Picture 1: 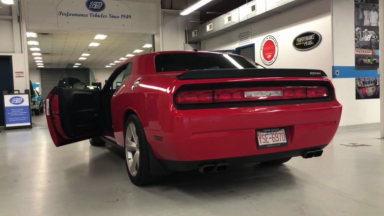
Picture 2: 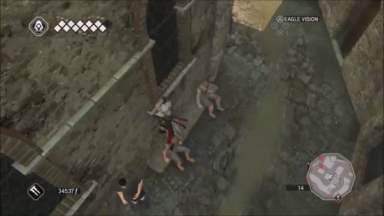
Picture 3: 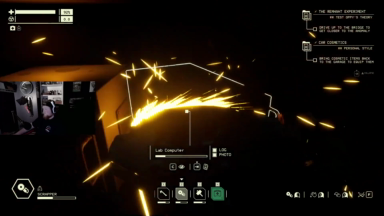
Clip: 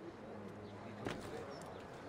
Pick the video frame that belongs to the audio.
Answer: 2